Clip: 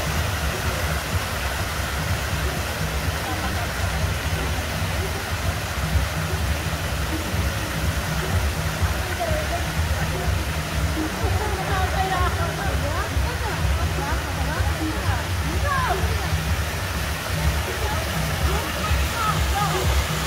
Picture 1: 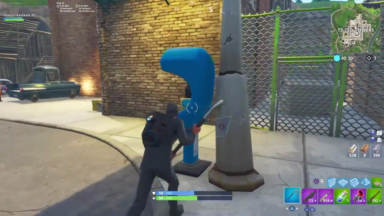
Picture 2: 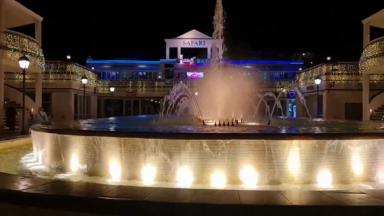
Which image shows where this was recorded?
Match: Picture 2